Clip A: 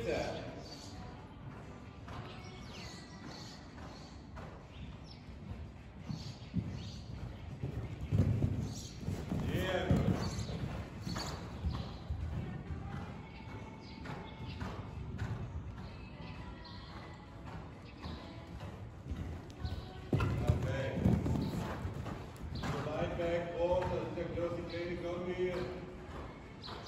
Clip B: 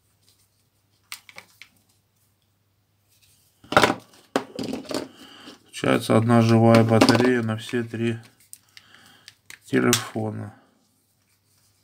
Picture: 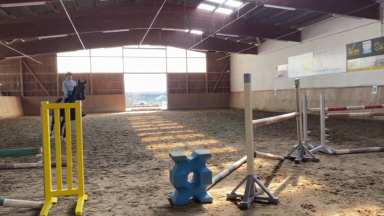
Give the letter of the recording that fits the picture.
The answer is A